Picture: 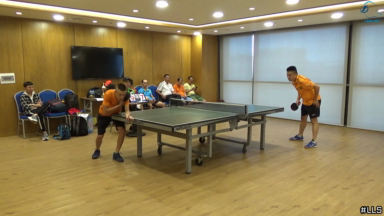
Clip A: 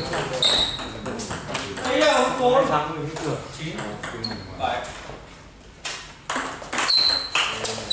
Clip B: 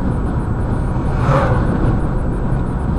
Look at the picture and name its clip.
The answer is A